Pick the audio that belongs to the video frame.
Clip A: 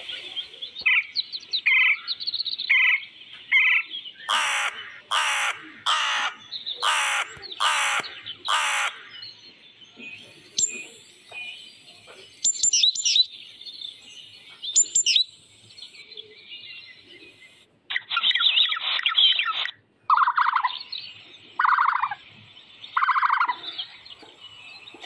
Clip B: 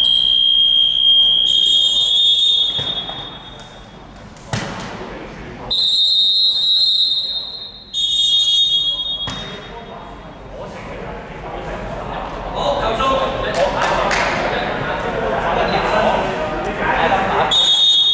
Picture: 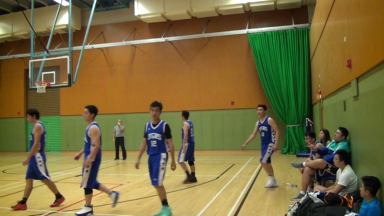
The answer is B